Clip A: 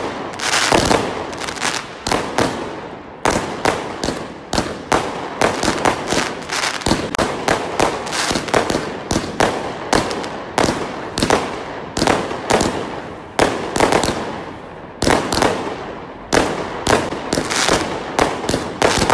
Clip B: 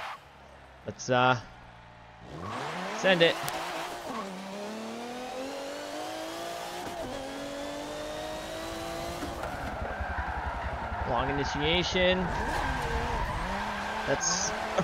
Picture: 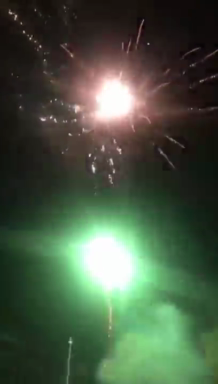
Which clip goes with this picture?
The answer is A